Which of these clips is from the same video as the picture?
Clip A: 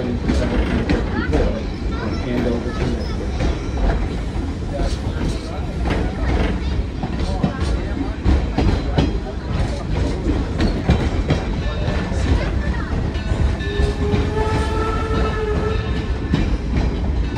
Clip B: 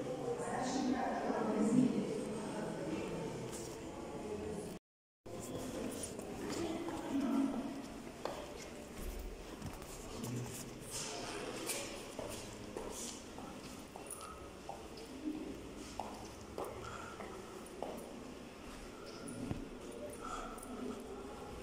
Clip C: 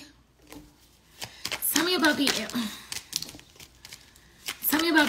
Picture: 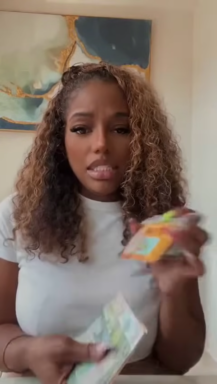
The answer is C